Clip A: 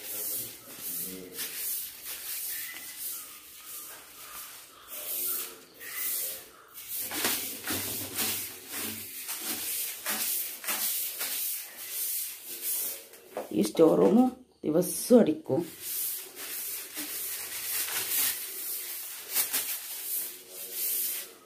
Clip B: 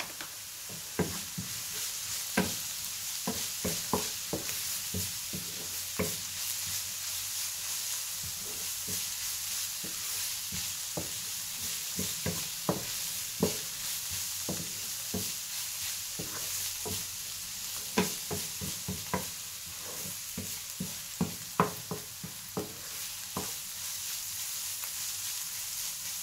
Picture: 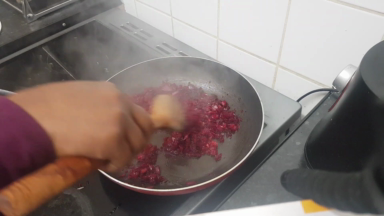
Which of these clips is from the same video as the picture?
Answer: B